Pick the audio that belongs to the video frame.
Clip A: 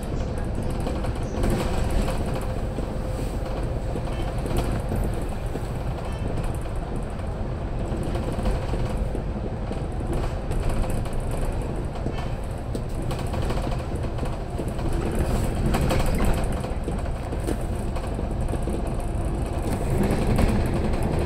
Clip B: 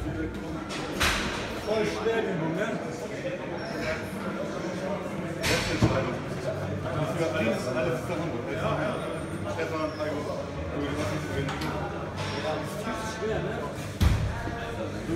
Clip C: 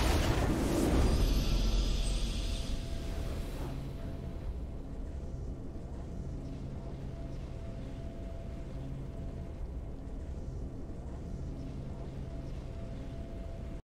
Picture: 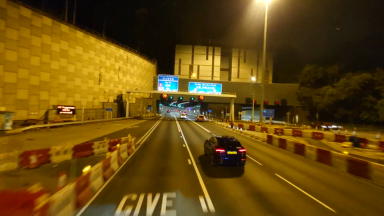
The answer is A